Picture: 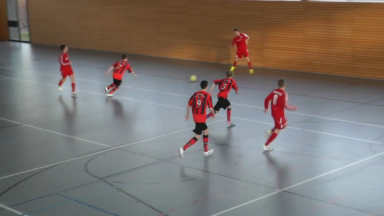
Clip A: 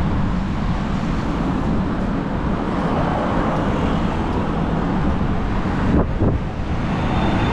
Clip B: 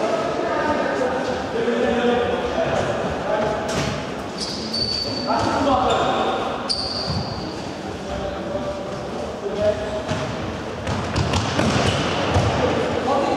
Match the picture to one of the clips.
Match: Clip B